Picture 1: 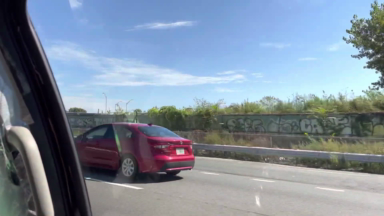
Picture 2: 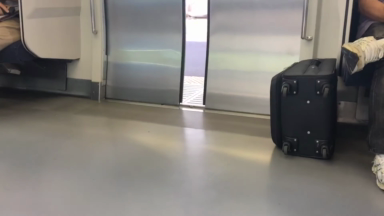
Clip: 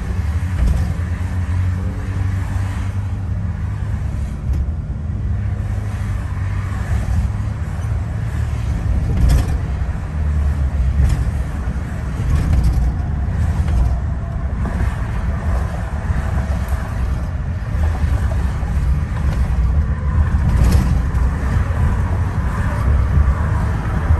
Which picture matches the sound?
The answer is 1